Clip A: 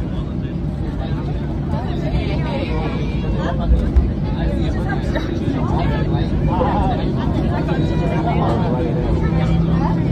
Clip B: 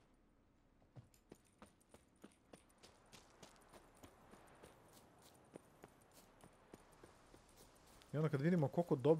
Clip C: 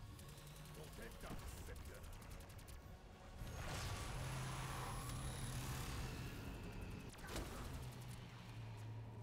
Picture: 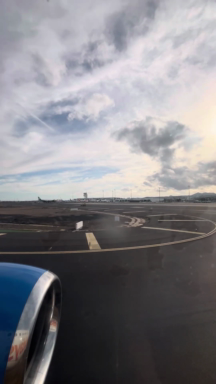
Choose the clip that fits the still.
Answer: A